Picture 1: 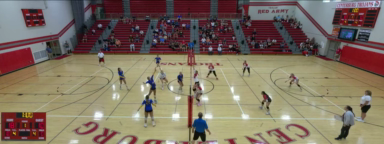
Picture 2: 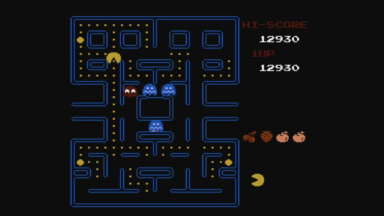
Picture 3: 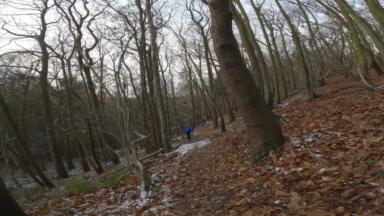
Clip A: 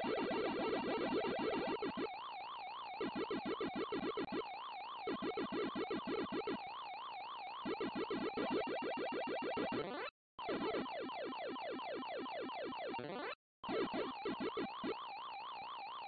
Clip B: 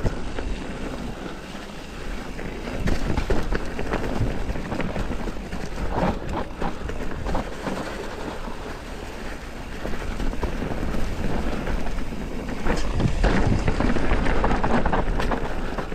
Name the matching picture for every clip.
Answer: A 2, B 3